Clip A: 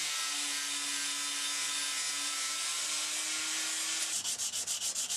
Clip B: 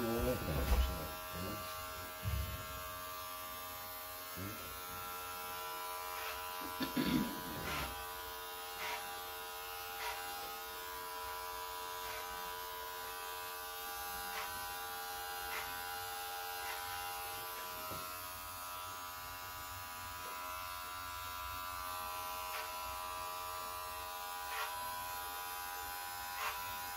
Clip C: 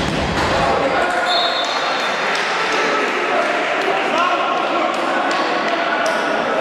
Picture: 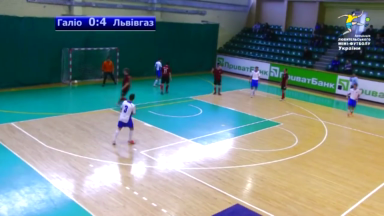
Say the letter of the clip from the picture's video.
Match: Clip C